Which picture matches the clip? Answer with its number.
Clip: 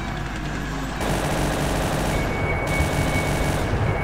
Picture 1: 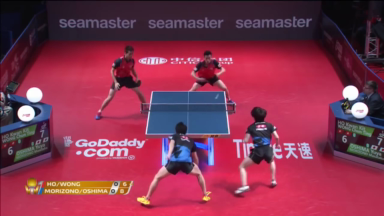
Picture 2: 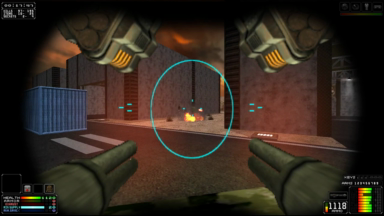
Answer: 2